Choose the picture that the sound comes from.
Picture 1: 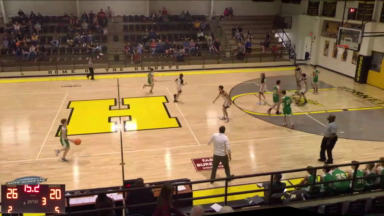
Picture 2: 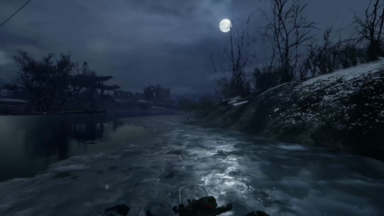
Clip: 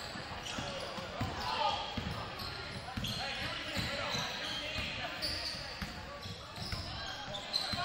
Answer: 1